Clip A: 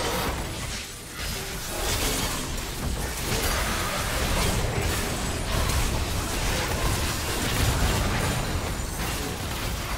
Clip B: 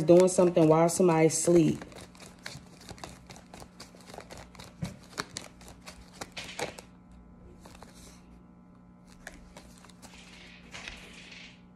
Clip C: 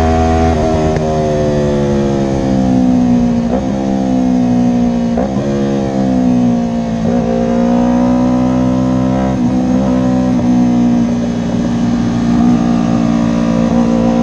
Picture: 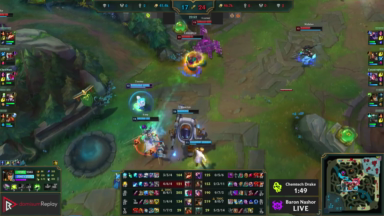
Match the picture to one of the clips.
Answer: A